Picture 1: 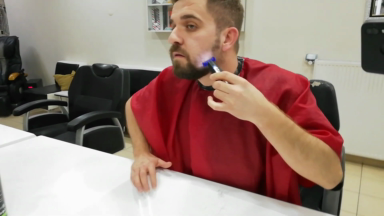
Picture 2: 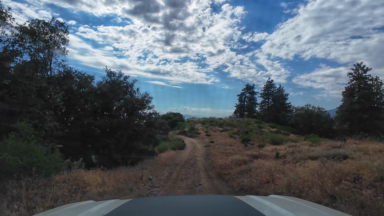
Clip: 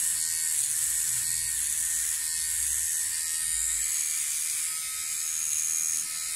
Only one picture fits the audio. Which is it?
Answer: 1